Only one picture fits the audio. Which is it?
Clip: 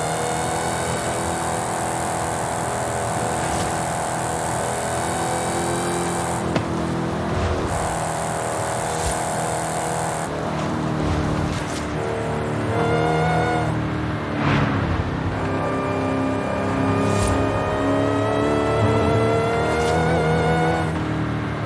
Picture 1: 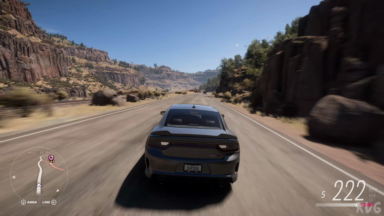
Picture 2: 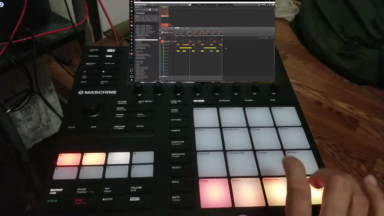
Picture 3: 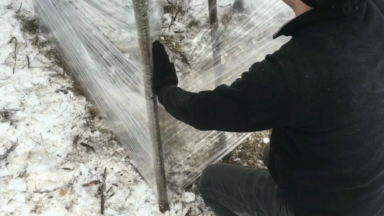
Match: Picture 1